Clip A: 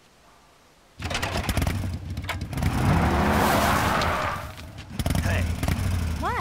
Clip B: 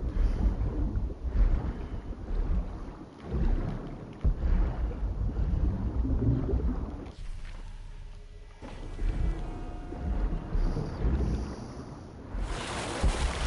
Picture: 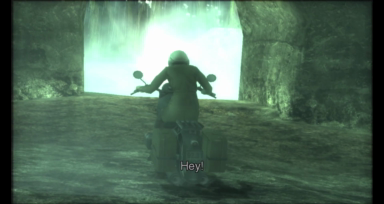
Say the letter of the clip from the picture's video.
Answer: A